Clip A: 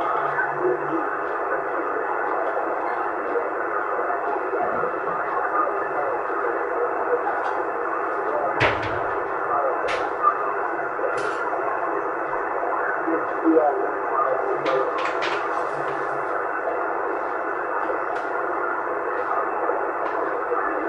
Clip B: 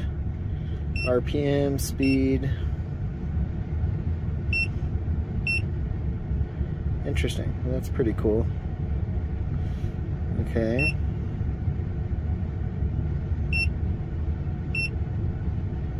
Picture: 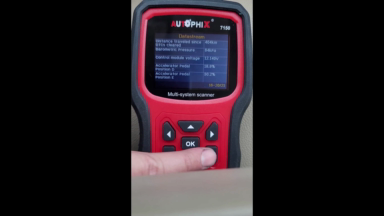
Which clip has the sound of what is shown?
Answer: B